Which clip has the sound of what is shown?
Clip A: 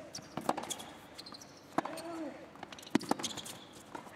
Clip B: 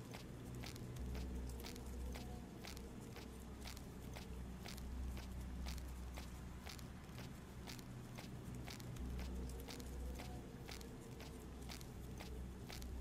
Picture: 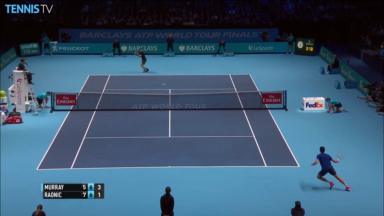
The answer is A